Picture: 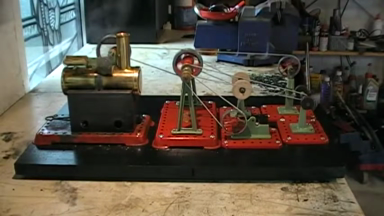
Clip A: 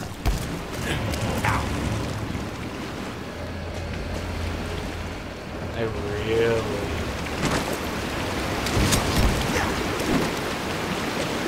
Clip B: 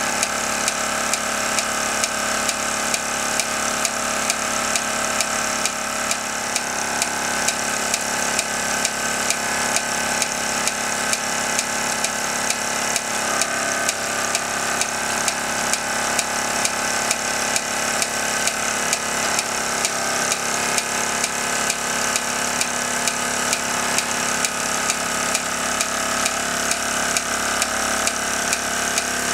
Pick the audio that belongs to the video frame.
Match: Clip B